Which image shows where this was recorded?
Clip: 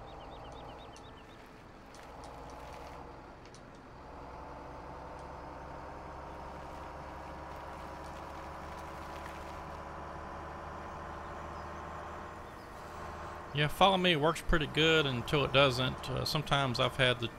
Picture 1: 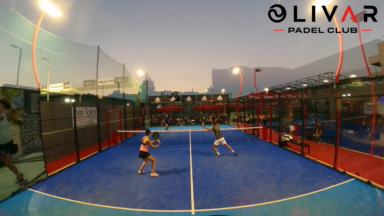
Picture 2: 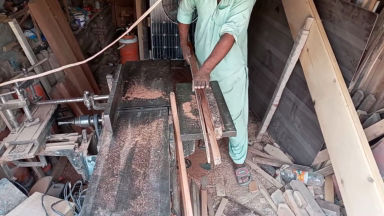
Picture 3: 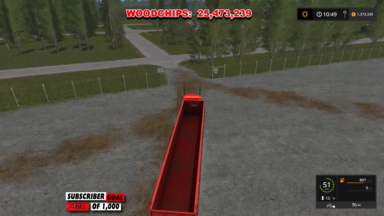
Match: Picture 3